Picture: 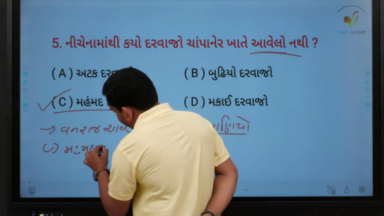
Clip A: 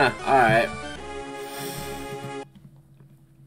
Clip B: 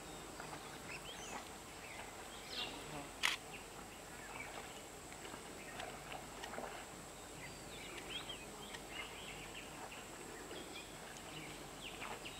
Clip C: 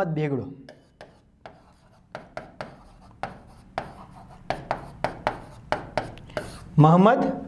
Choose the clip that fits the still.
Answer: C